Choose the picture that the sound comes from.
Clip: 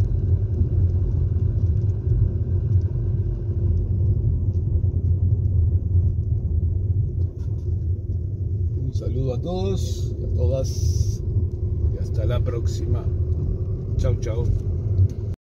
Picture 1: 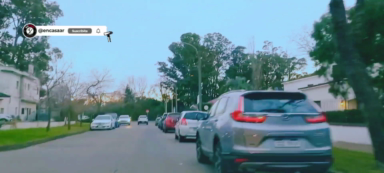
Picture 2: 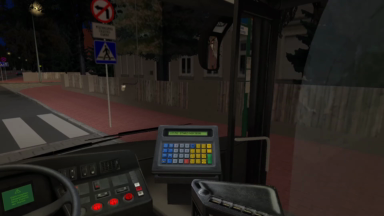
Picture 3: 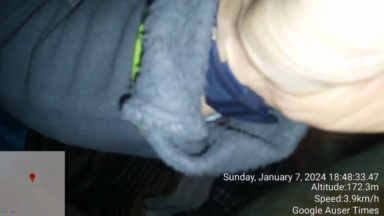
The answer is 1